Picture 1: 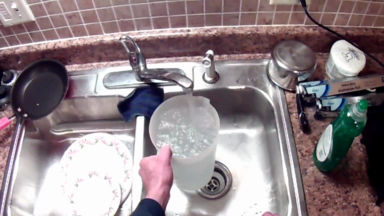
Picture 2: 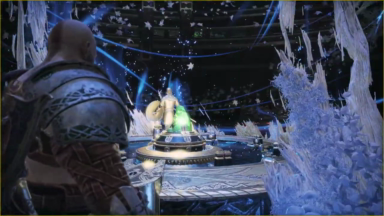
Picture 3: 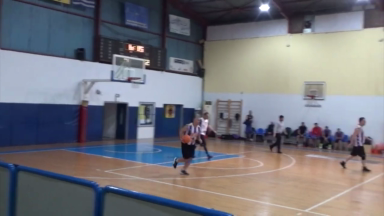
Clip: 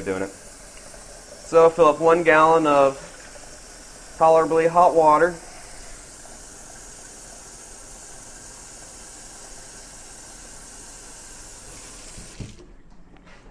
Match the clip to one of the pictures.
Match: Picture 1